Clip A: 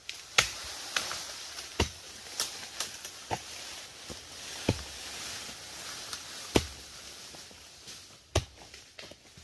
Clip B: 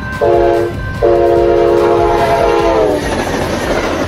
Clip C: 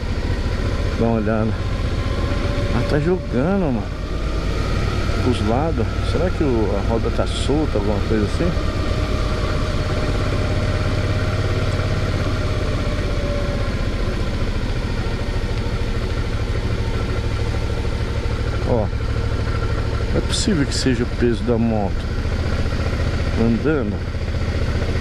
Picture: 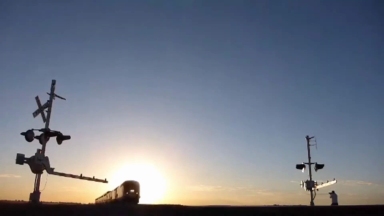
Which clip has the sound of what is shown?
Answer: B